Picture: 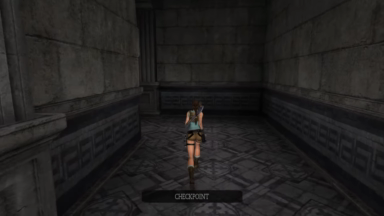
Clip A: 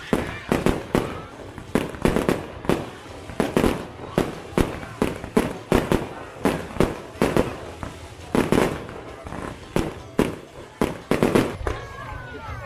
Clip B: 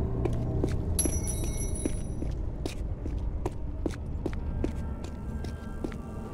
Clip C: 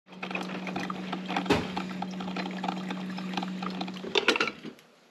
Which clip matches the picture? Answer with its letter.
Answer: B